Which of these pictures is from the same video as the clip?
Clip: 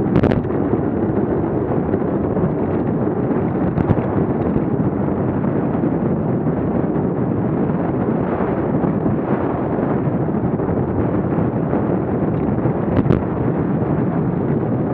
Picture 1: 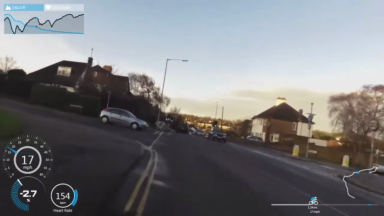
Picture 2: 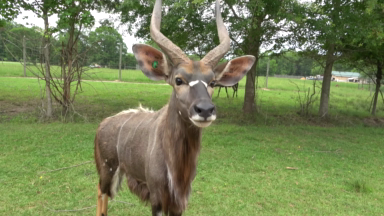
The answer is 1